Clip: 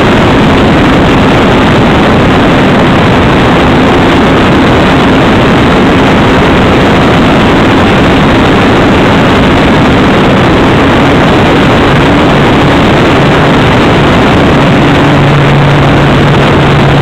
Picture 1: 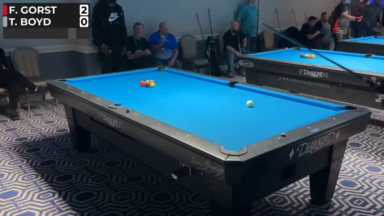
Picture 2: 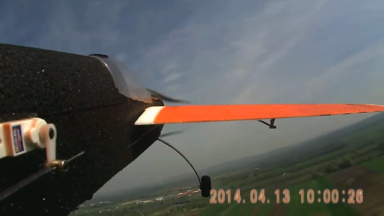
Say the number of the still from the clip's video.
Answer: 2